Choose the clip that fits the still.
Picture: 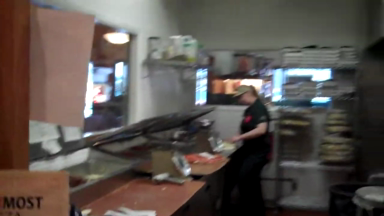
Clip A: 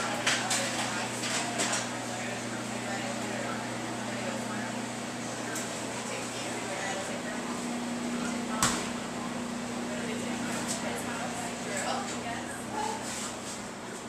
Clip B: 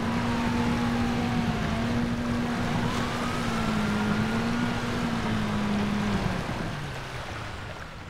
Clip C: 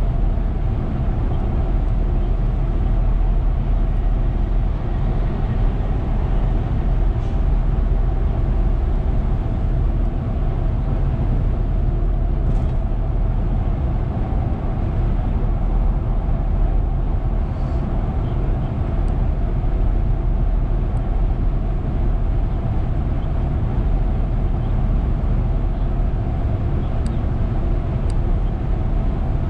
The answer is A